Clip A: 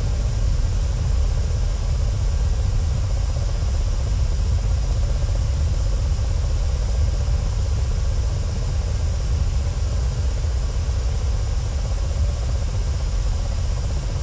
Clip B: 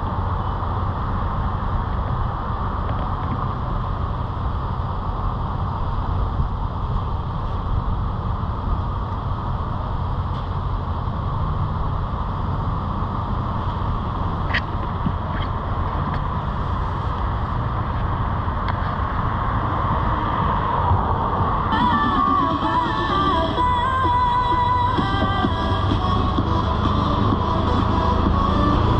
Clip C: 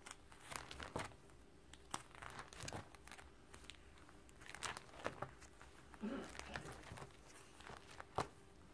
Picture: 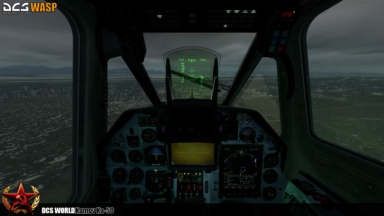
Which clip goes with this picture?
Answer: A